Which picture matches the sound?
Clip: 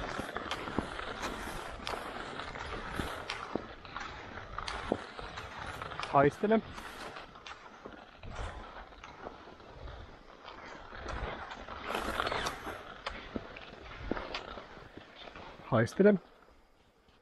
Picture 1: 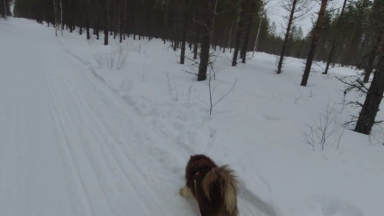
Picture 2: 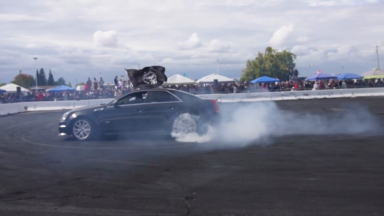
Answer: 1